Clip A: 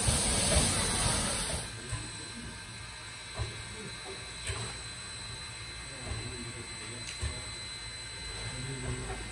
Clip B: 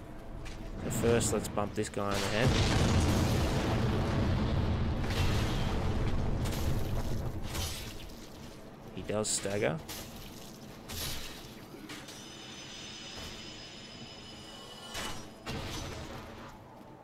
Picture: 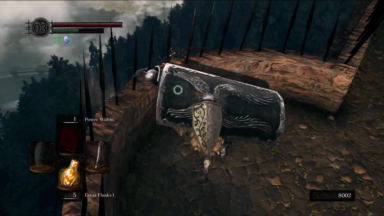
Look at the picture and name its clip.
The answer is B